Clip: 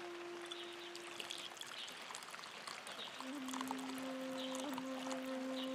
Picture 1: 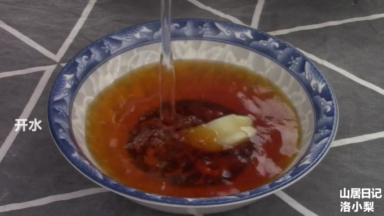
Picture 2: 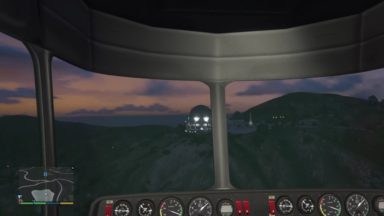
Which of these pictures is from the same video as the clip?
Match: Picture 1